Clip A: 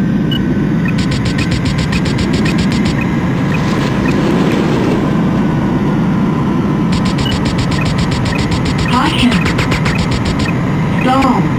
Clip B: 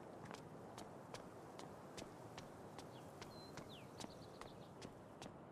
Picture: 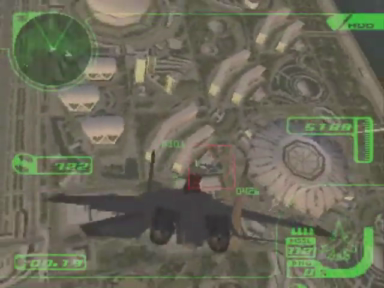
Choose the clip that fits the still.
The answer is A